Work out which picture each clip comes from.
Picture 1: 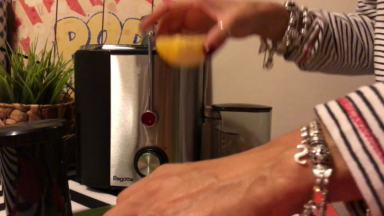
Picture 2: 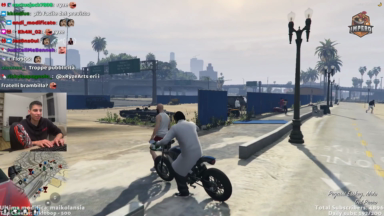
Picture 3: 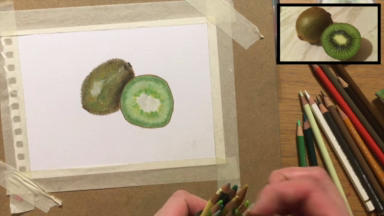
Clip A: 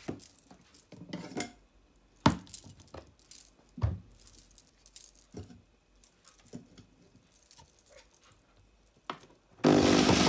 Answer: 1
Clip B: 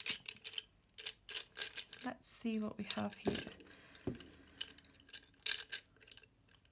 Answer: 3